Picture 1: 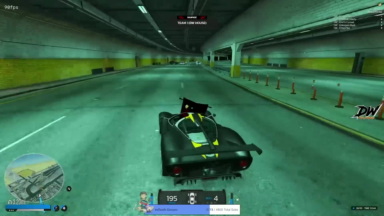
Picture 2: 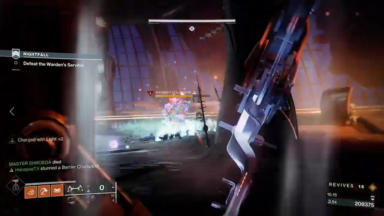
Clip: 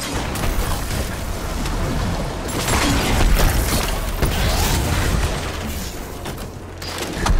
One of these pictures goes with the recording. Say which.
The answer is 2